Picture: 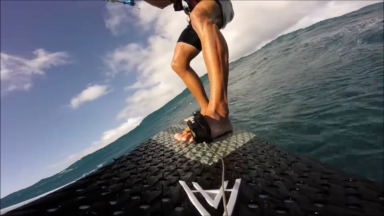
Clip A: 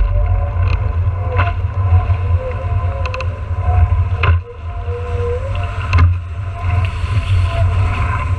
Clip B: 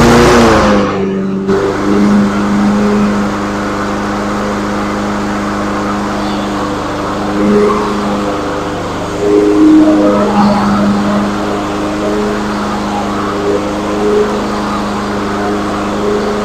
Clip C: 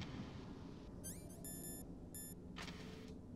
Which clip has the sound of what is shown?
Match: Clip A